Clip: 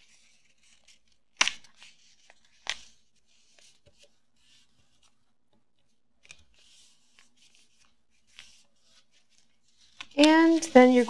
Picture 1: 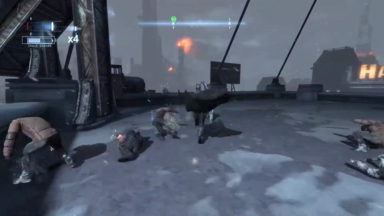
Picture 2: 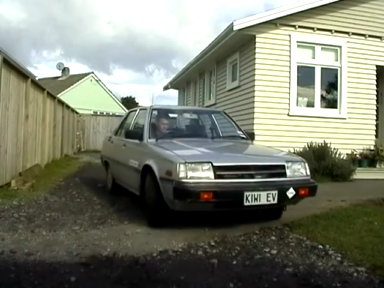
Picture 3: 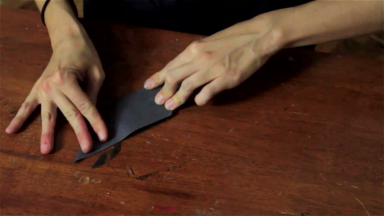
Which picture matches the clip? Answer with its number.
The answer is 3